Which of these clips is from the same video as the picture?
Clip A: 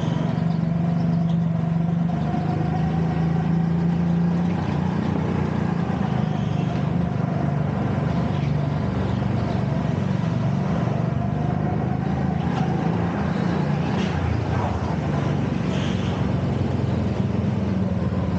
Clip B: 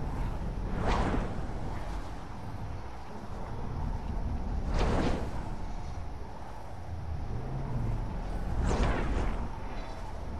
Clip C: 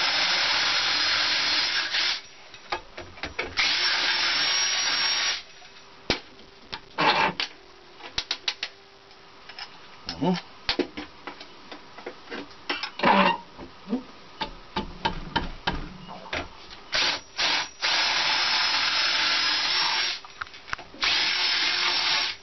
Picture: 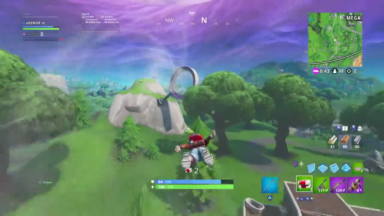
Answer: B